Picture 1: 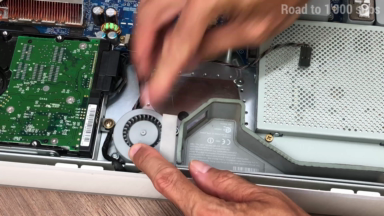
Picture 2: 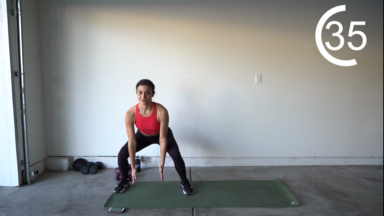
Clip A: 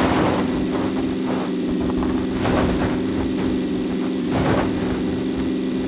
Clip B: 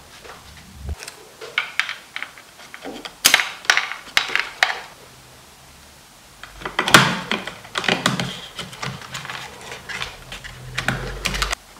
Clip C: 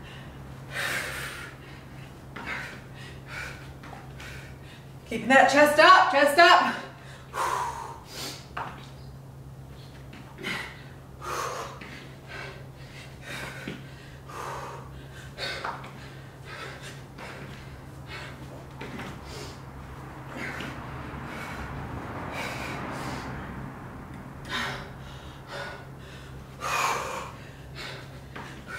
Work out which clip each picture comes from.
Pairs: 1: B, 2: C